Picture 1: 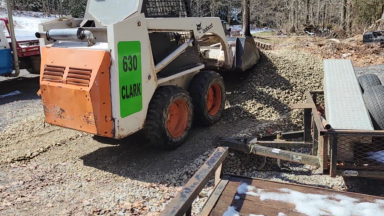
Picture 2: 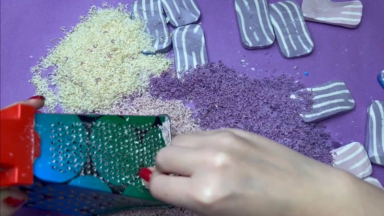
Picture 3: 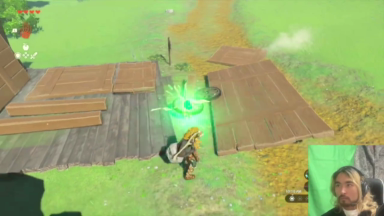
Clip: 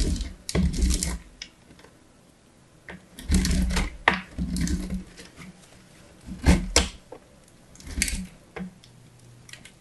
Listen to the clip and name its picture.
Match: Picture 2